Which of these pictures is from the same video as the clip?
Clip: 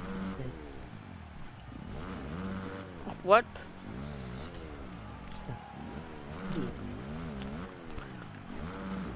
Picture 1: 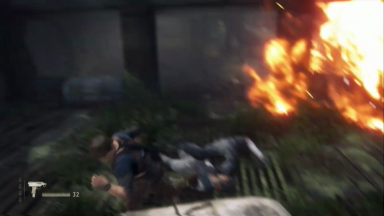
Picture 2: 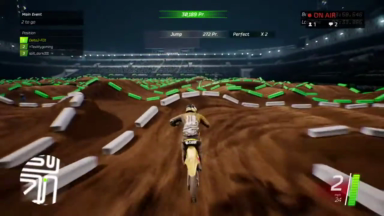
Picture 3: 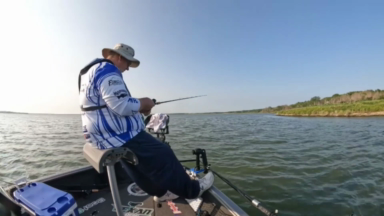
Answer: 2